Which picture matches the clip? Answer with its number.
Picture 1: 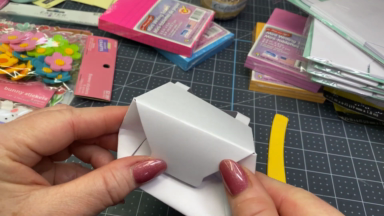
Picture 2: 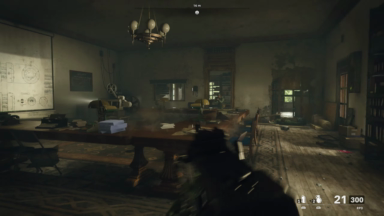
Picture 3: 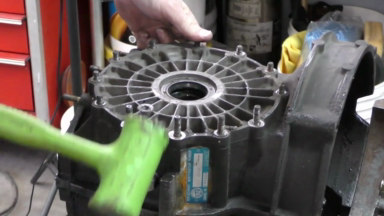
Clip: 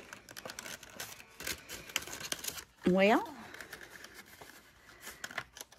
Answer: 1